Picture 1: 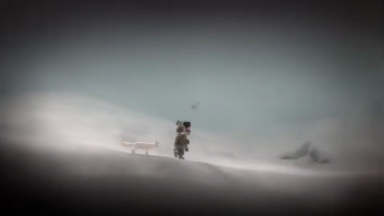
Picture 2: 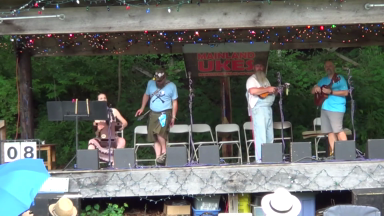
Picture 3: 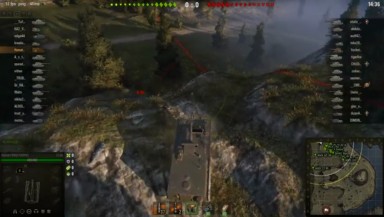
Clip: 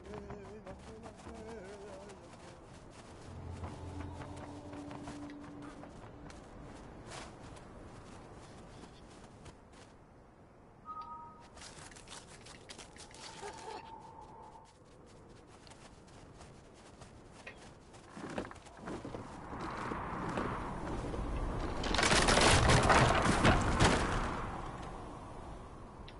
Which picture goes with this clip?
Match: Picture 1